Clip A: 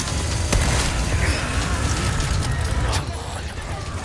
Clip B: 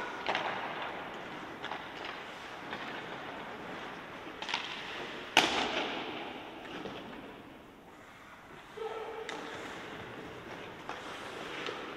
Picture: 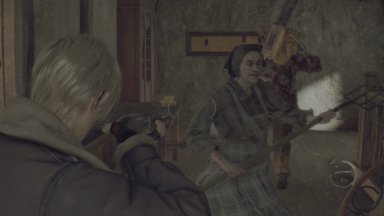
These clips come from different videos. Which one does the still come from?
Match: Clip A